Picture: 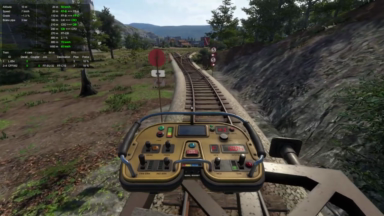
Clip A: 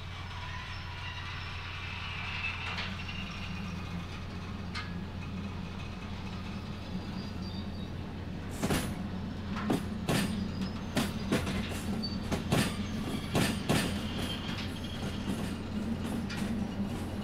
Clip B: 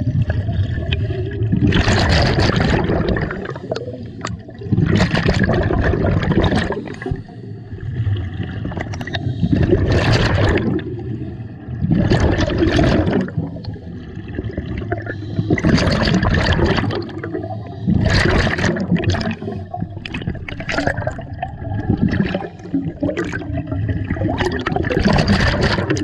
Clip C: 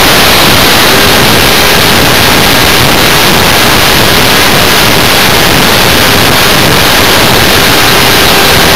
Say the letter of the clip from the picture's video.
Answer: A